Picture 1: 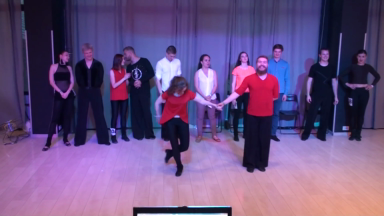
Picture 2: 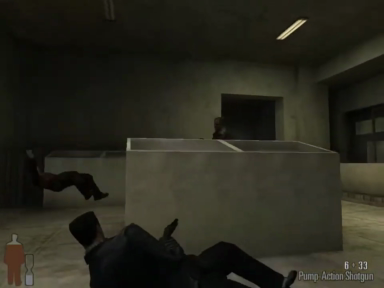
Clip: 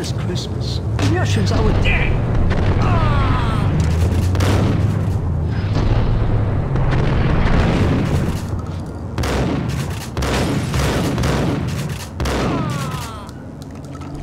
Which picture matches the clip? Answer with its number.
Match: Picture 2